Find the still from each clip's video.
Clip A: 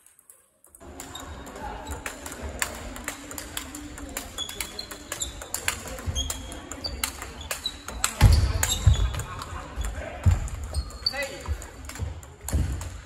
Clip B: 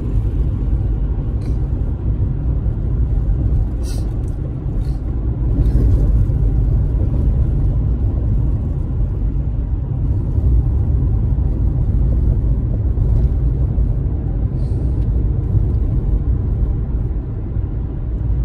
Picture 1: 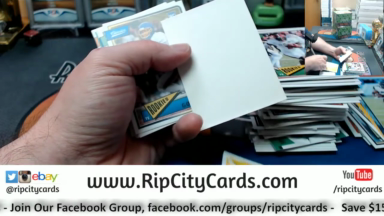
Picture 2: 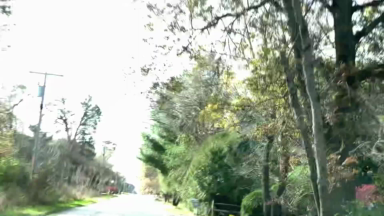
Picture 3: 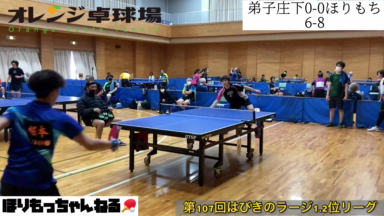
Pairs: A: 3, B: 2